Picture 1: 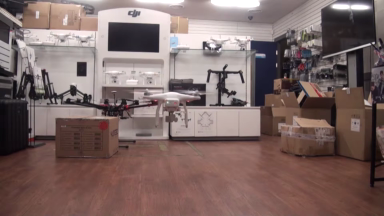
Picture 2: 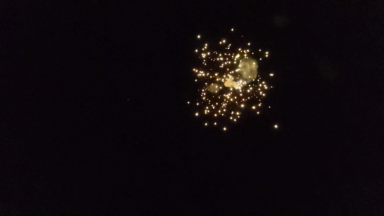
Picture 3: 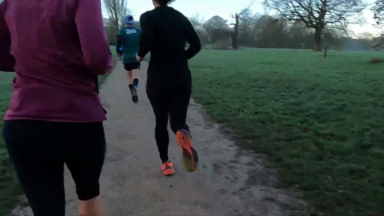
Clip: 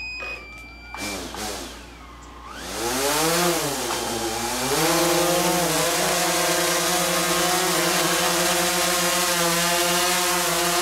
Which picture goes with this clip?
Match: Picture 1